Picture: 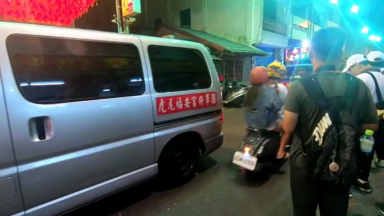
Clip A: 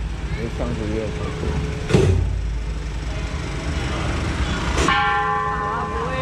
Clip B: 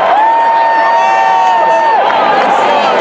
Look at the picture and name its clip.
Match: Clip A